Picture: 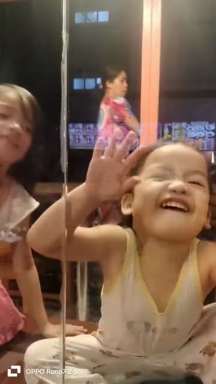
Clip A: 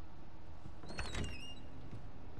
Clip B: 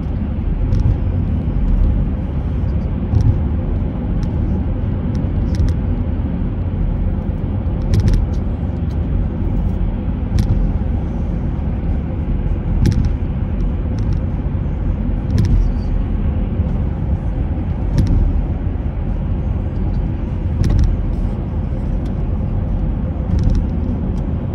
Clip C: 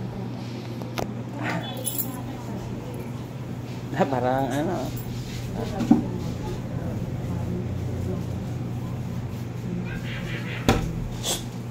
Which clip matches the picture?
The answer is C